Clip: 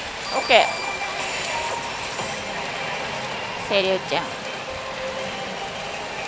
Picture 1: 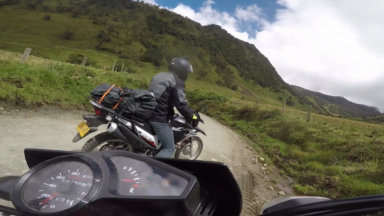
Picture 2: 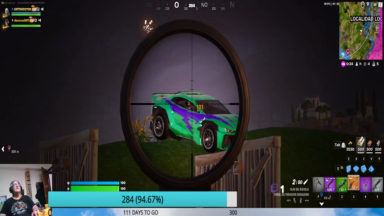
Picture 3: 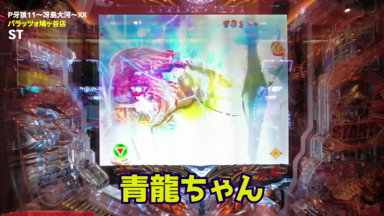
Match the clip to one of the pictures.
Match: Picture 3